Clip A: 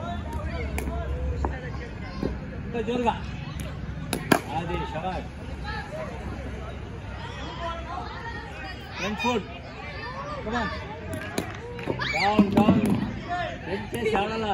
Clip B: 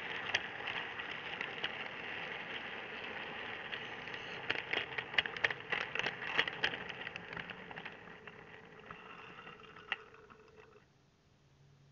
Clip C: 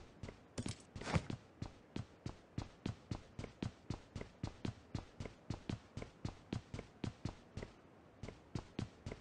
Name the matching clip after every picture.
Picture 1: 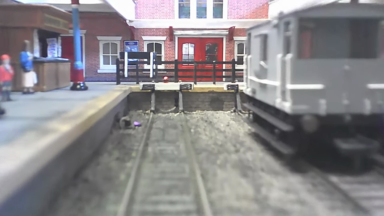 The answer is B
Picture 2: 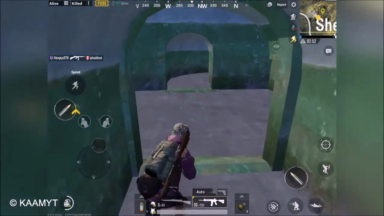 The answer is C